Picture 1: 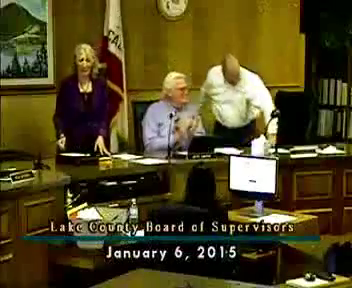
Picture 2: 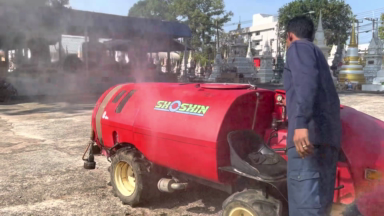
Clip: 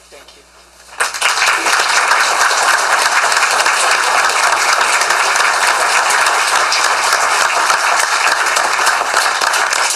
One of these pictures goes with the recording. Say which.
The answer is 1